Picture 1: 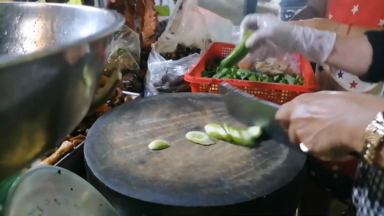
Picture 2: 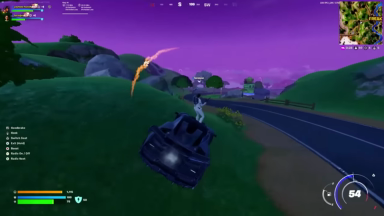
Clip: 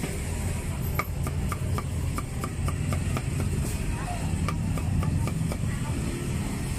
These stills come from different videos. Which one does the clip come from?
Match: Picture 1